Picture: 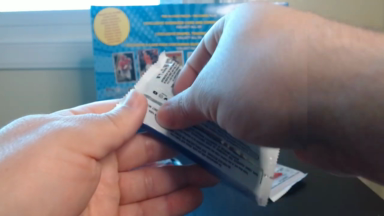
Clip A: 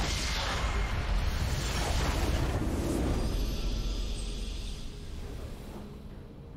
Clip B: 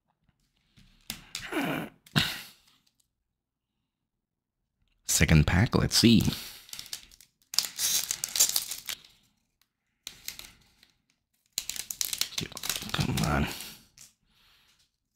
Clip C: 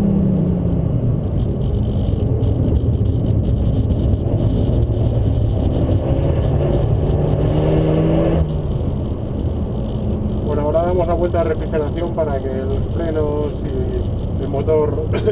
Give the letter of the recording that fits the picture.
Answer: B